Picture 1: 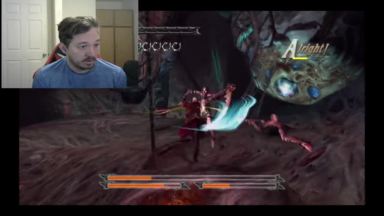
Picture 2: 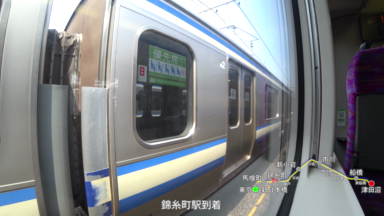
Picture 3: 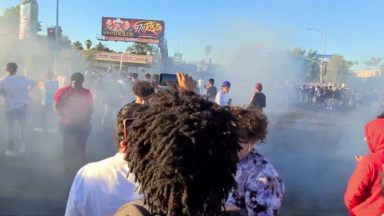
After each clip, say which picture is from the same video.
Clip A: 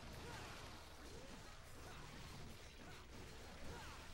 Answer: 1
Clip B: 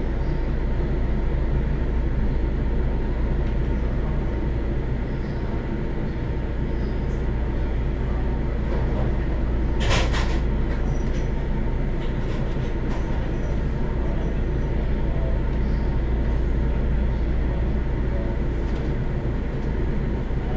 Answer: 2